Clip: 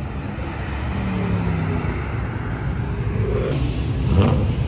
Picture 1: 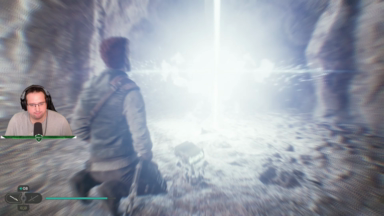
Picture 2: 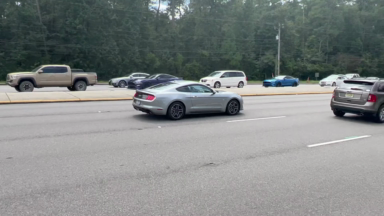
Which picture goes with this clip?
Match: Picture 2